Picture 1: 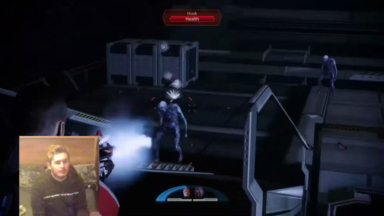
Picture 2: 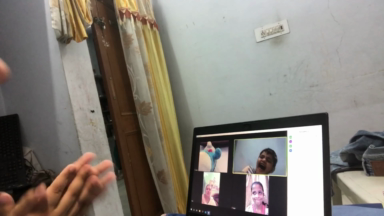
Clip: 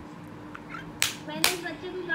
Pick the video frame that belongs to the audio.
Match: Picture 2